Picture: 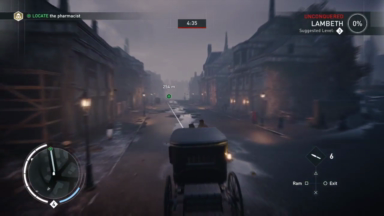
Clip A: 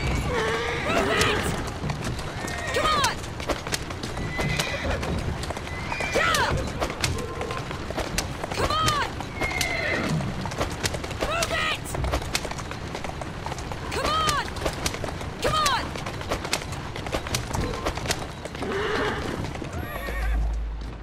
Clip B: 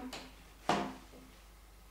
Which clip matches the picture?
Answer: A